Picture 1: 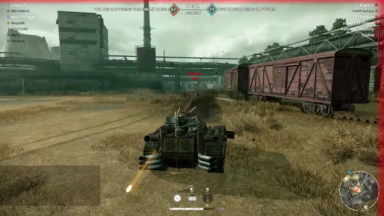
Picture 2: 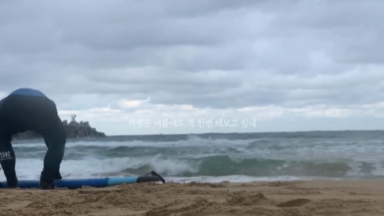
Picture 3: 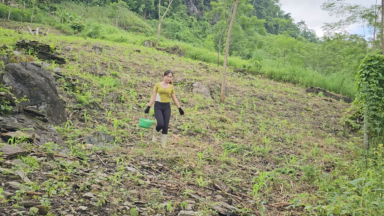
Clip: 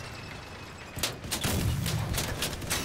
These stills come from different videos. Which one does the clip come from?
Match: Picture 1